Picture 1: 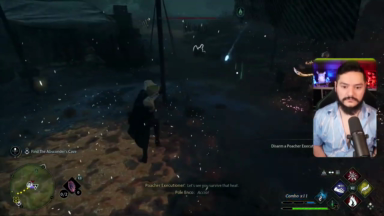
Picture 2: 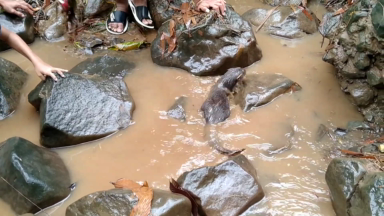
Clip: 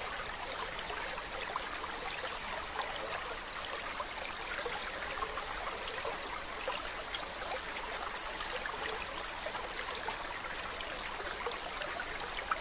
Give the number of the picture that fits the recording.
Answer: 2